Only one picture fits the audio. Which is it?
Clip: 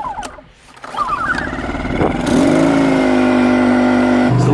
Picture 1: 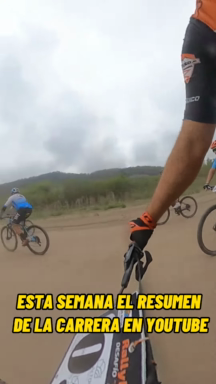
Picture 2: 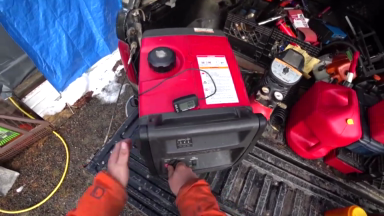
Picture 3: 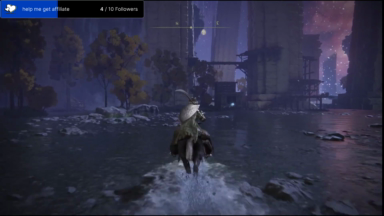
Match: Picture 2